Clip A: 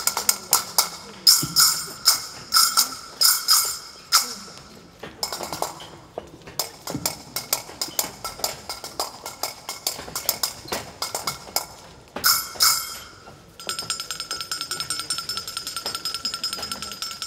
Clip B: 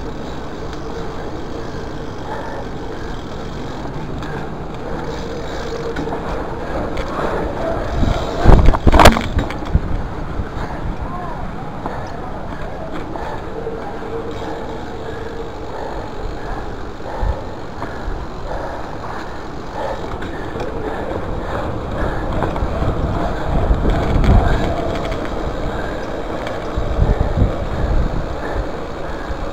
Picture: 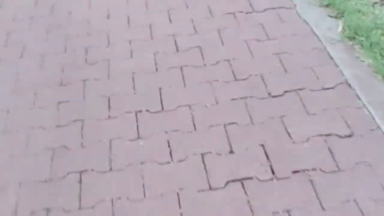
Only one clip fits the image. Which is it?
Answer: B